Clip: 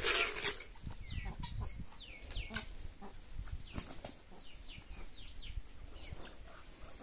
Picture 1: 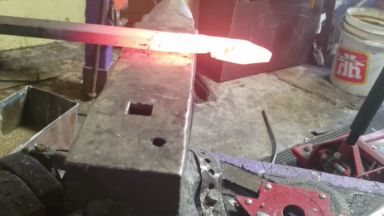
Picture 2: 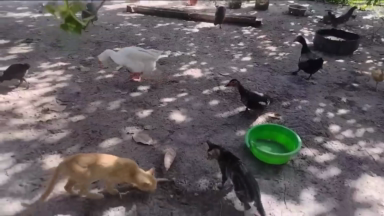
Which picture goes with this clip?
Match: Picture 2